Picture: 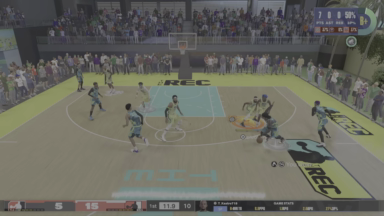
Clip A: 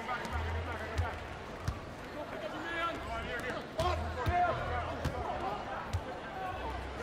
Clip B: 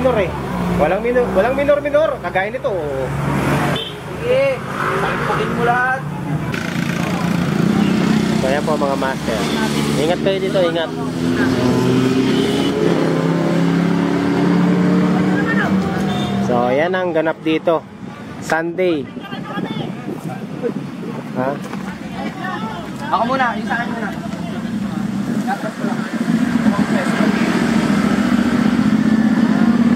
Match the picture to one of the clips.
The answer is A